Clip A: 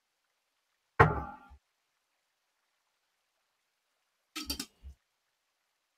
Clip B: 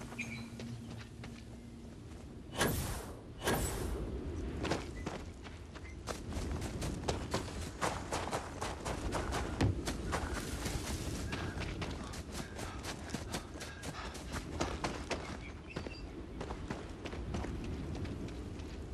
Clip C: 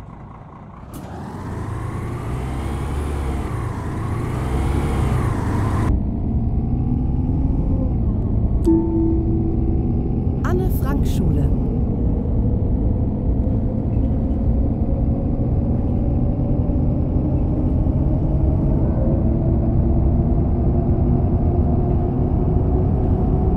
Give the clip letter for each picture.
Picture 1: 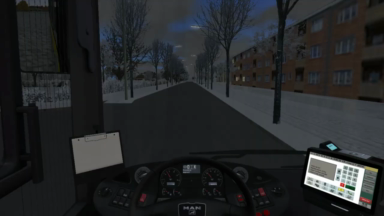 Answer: C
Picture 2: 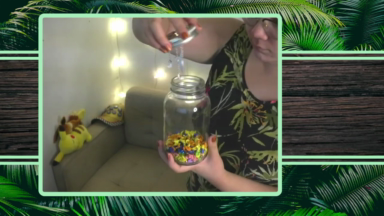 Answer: A